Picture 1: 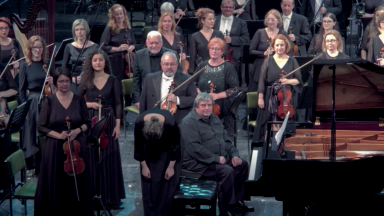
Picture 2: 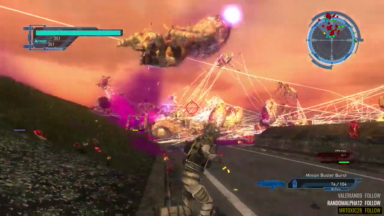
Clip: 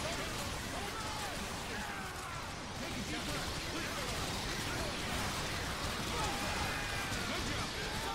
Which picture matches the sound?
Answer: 2